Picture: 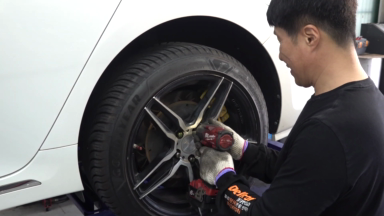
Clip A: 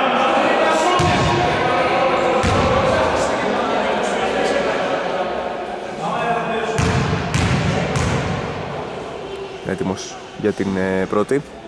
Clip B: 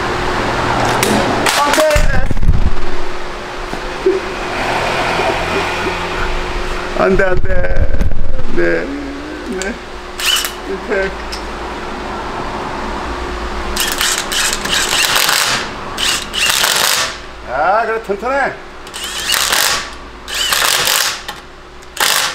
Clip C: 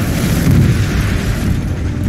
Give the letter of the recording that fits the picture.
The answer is B